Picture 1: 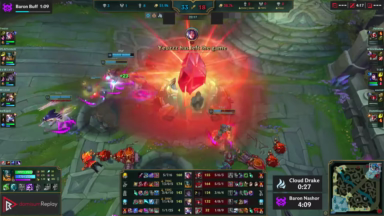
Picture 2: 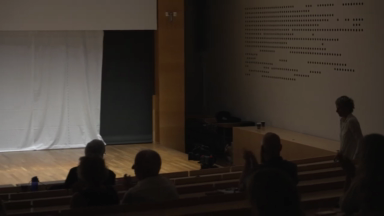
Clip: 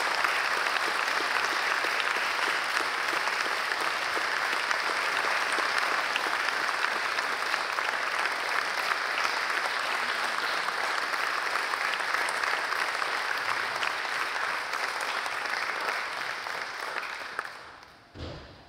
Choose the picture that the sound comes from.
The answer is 2